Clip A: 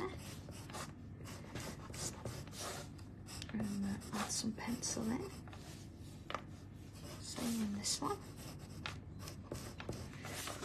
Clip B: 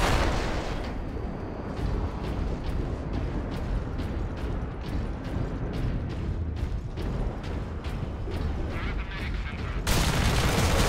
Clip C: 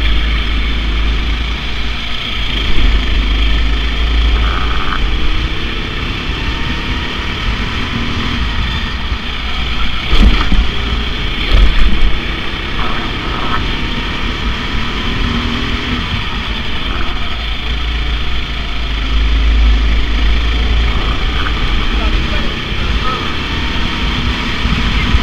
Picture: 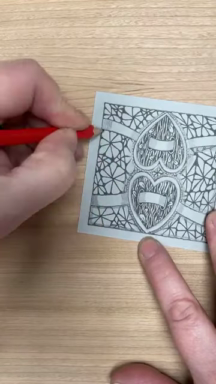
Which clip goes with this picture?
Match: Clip A